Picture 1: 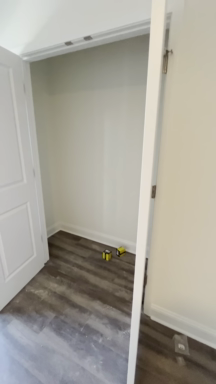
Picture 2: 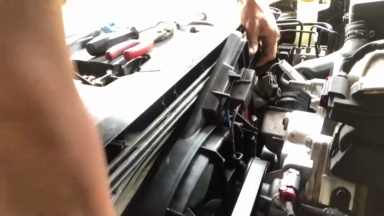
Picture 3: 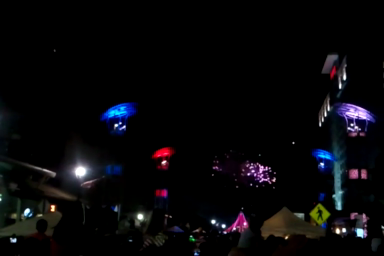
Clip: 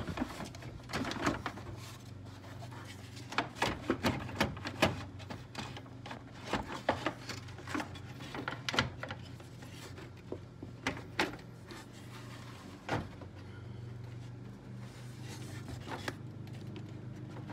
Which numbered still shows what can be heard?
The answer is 2